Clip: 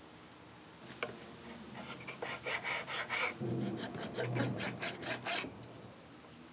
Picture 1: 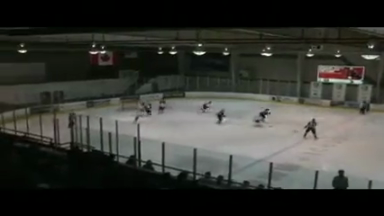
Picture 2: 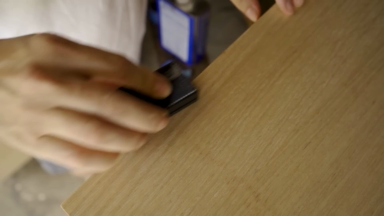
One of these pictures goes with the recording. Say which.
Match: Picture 2